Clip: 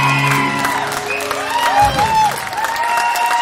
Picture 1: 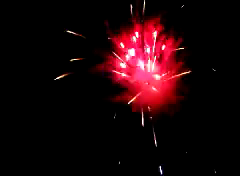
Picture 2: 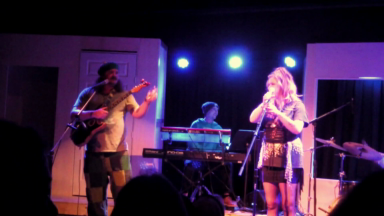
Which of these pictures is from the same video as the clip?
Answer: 2